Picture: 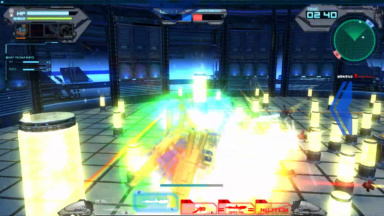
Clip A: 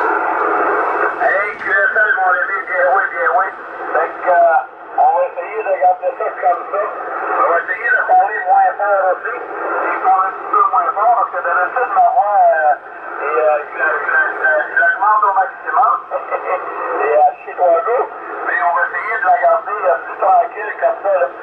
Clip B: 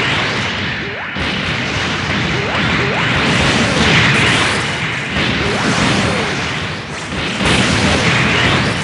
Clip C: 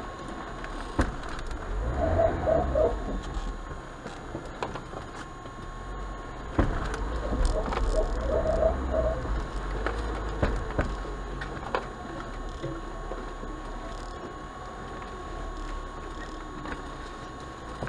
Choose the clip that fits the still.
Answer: B